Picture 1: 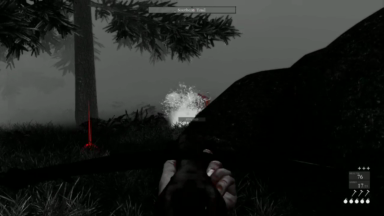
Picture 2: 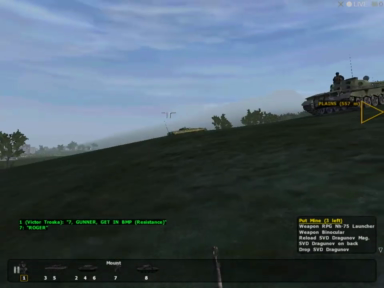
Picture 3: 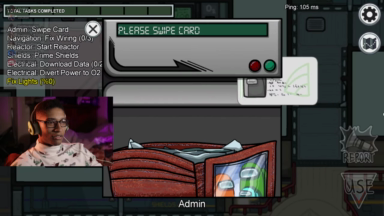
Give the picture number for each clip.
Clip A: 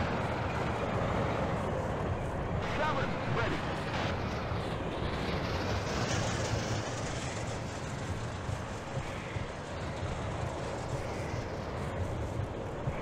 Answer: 2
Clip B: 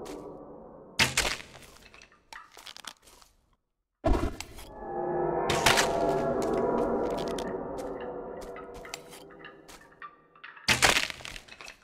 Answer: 1